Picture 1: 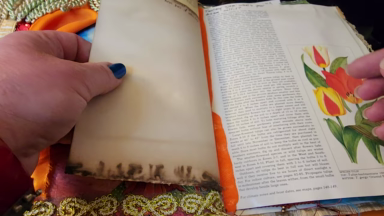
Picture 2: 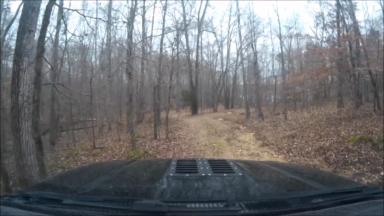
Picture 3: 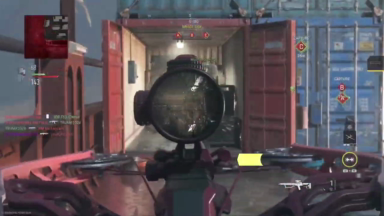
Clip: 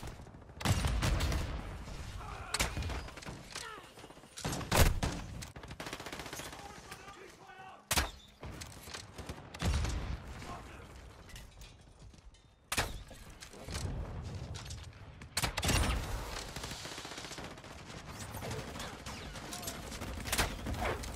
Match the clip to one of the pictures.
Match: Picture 3